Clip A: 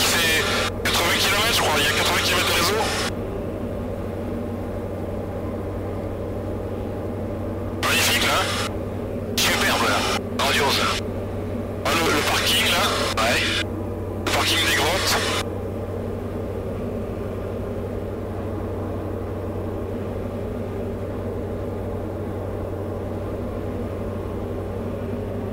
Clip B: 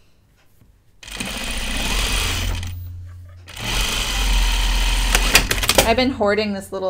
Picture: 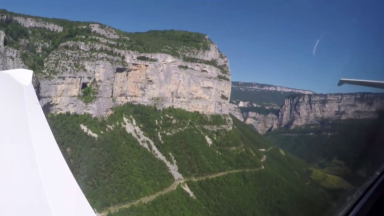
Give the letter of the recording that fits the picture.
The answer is A